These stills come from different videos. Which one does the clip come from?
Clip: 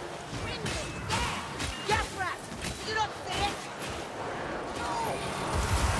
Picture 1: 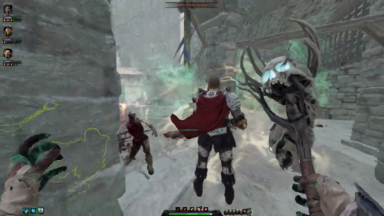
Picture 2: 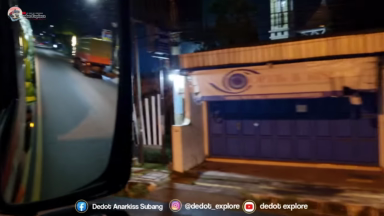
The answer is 1